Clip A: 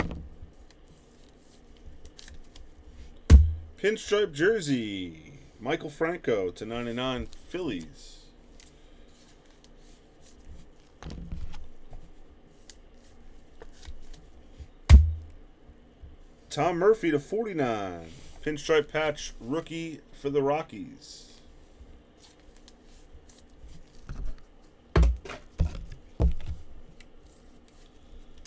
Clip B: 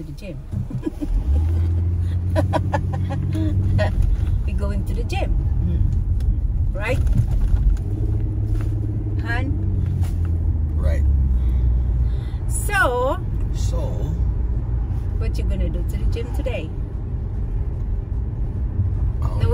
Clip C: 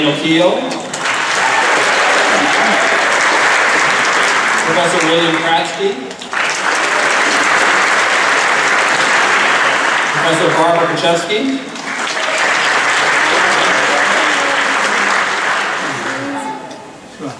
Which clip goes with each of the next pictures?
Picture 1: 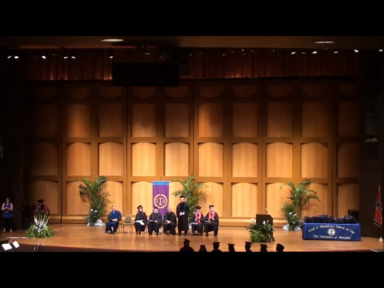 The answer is C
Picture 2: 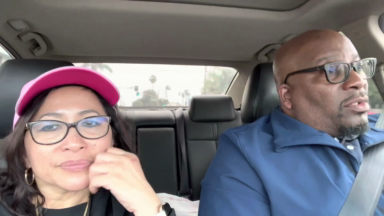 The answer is B